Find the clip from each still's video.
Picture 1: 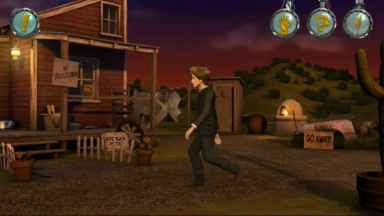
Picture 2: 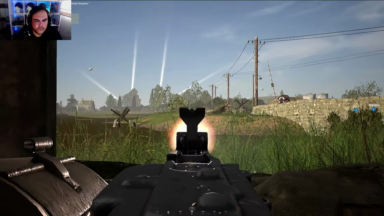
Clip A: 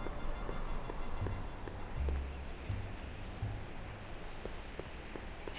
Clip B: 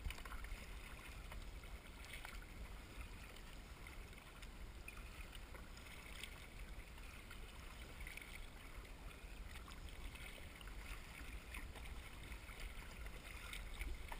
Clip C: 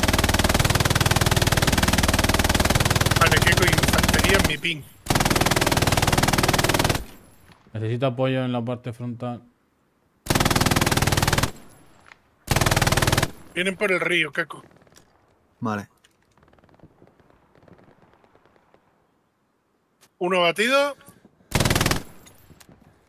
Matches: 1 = A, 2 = C